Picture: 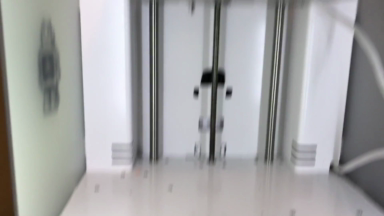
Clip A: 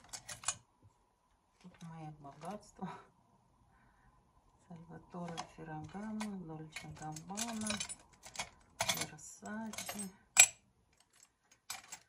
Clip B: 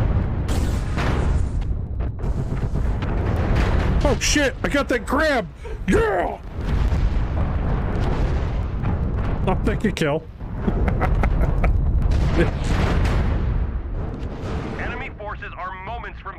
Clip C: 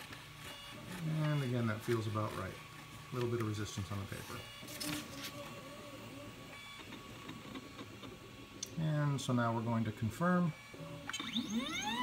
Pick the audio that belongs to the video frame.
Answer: C